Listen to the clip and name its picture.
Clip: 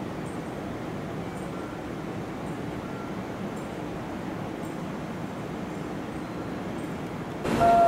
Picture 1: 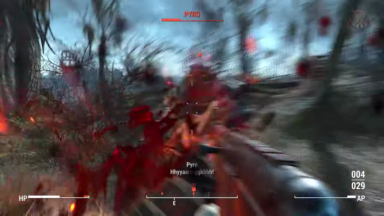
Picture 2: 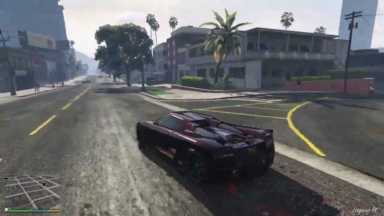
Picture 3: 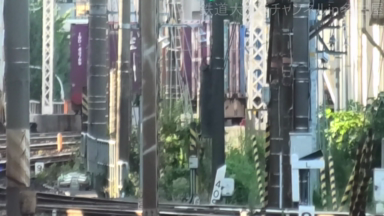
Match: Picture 3